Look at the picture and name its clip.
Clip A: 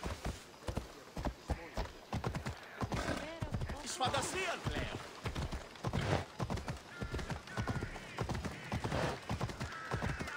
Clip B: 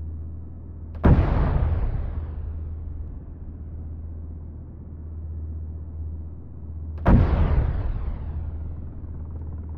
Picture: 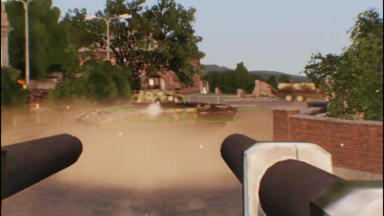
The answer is B